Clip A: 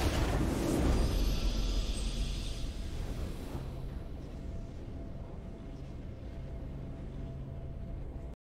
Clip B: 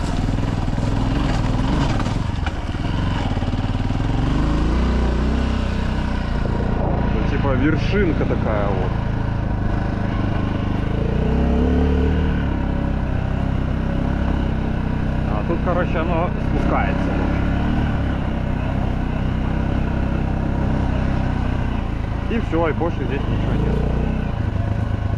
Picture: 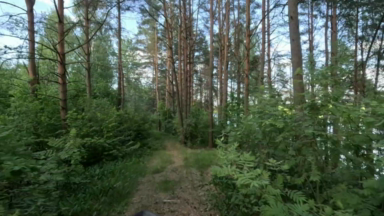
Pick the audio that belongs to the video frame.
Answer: B